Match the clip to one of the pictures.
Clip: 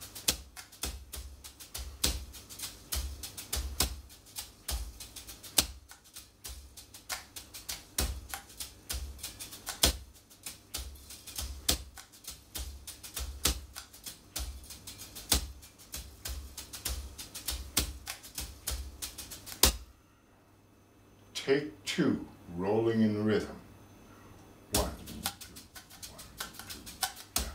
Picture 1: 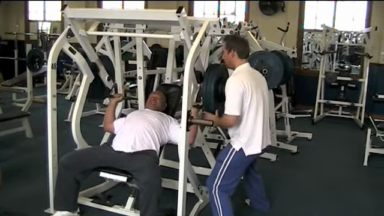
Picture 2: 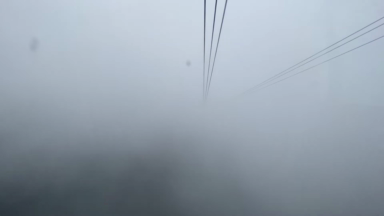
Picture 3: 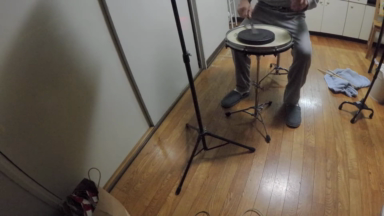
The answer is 3